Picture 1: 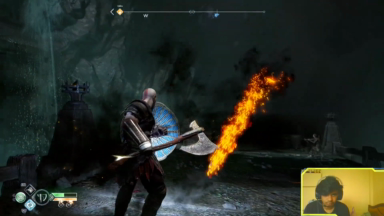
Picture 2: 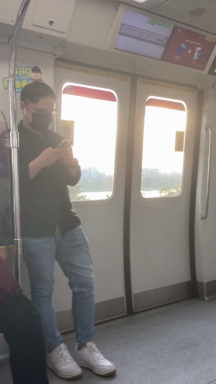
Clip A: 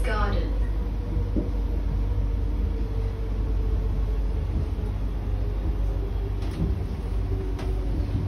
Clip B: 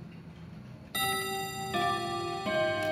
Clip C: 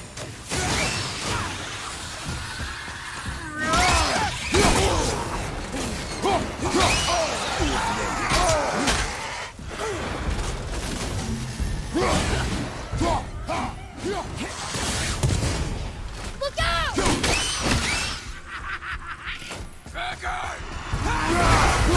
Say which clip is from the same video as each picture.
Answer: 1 C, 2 A